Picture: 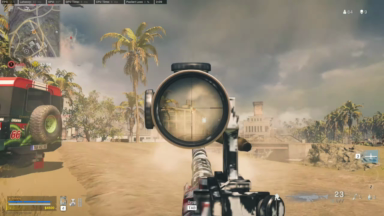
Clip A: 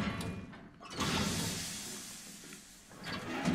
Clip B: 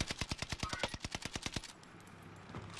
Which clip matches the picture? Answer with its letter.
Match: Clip B